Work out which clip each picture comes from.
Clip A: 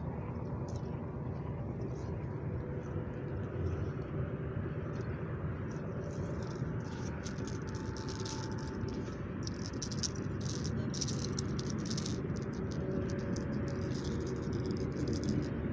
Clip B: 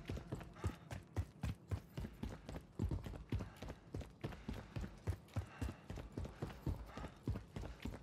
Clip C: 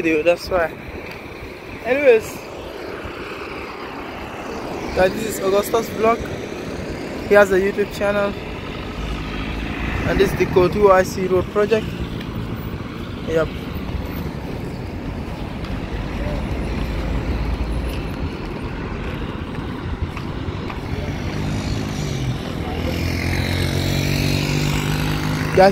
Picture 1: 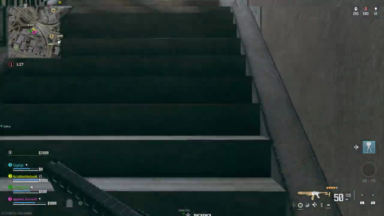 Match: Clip B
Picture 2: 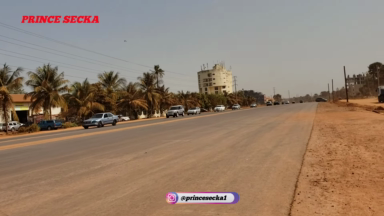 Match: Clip C